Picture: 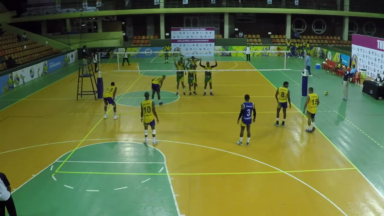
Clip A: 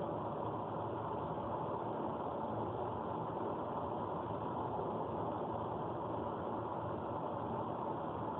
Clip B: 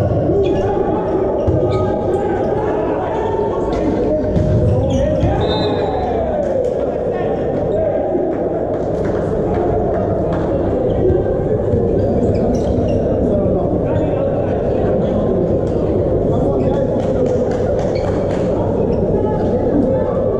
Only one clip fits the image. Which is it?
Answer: B